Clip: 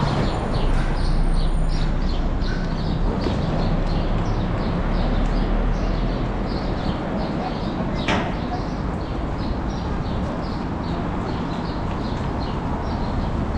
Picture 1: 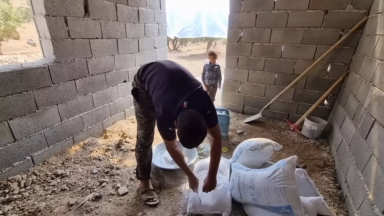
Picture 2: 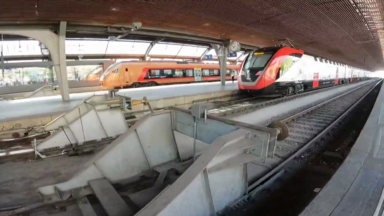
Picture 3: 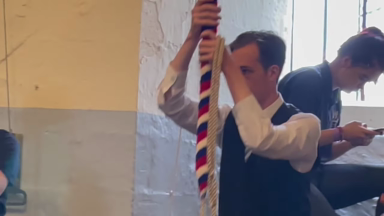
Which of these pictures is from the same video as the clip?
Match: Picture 2